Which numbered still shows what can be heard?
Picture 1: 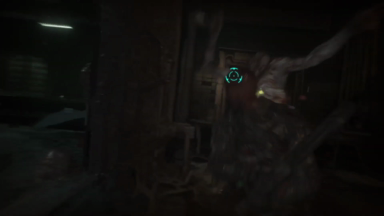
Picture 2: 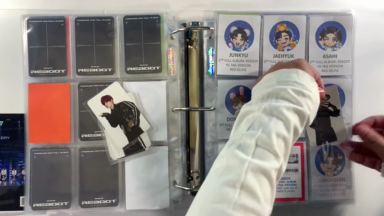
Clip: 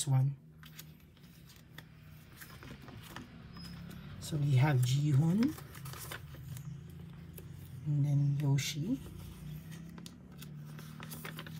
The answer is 2